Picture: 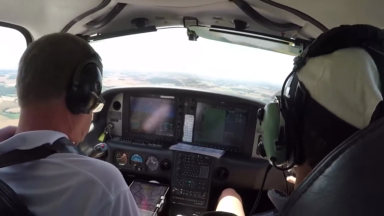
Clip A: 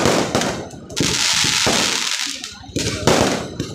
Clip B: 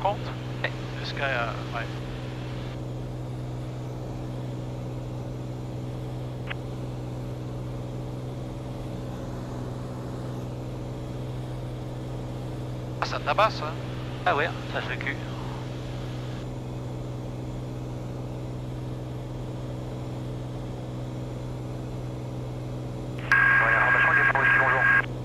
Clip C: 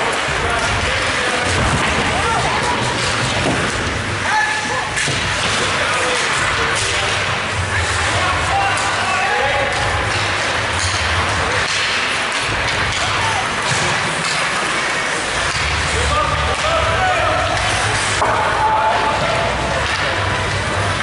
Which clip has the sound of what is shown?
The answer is B